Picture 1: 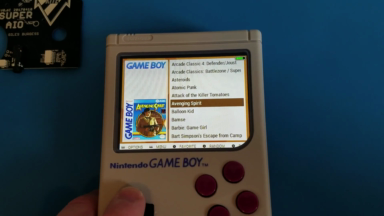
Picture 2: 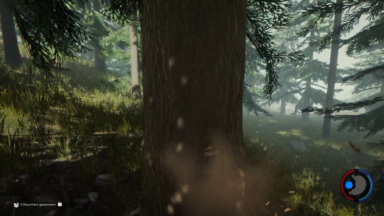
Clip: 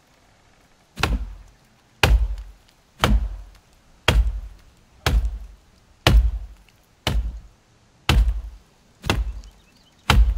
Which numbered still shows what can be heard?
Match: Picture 2